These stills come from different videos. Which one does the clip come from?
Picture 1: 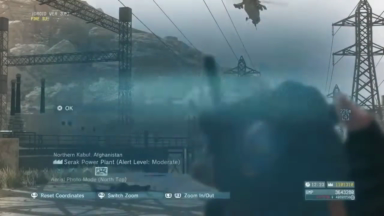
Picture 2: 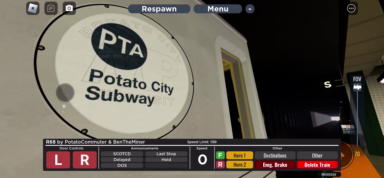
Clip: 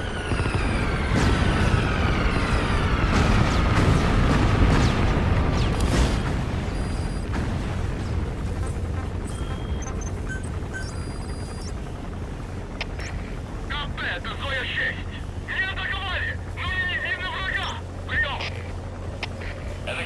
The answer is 1